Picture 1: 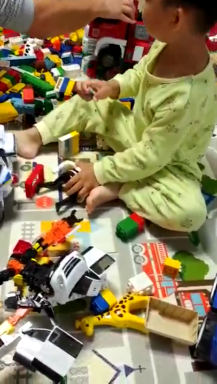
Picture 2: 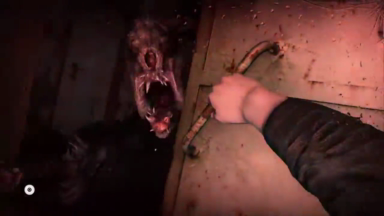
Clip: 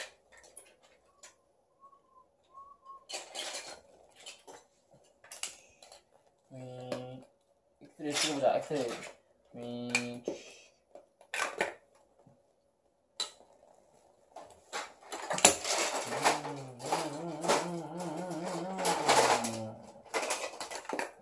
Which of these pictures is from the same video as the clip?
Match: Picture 1